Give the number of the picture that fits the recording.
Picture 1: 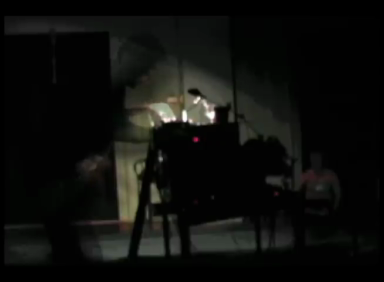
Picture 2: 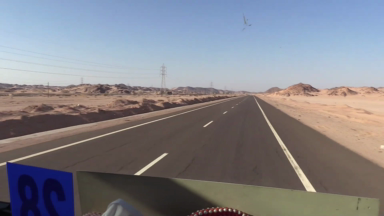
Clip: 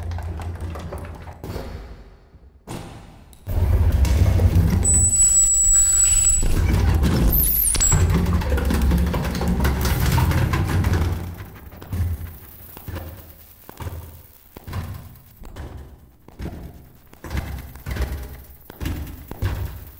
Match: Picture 1